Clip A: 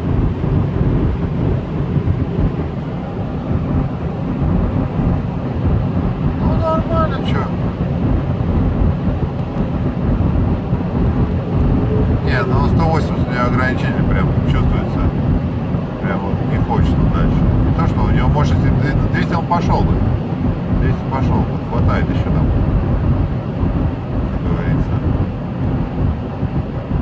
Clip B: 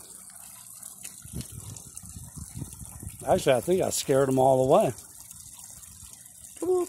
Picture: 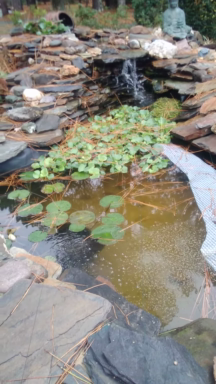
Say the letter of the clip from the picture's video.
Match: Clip B